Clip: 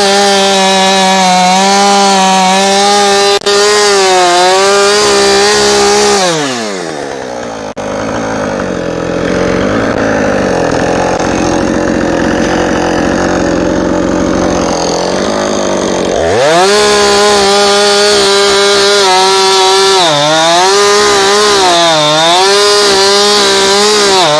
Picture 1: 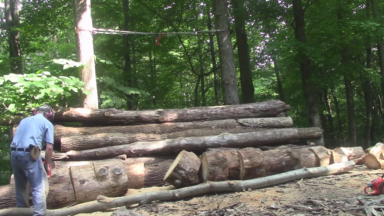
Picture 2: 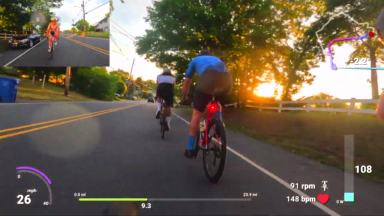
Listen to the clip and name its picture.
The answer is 1